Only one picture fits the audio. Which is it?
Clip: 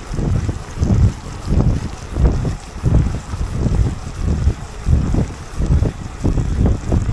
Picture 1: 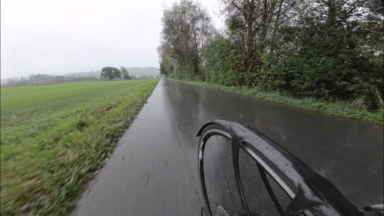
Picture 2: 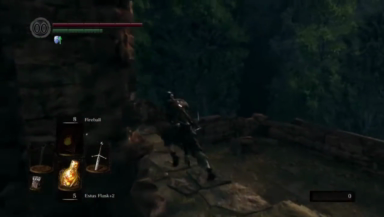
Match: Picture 1